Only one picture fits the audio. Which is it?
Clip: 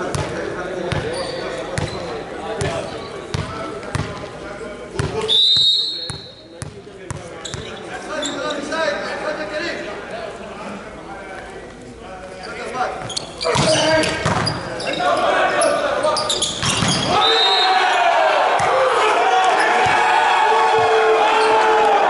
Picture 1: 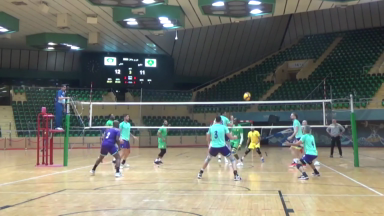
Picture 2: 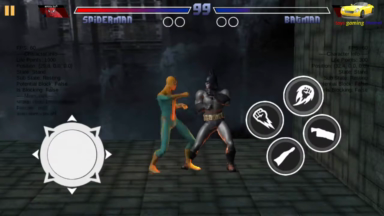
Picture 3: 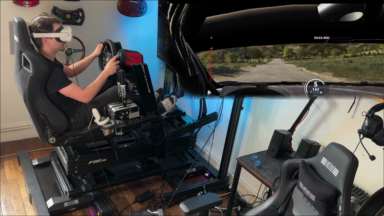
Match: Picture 1